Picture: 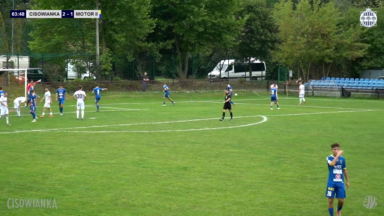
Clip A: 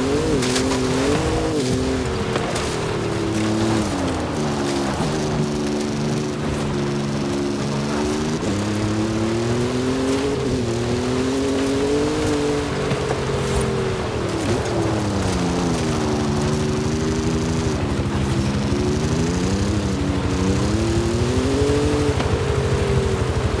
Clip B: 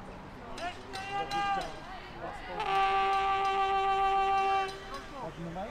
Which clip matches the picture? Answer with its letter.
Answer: B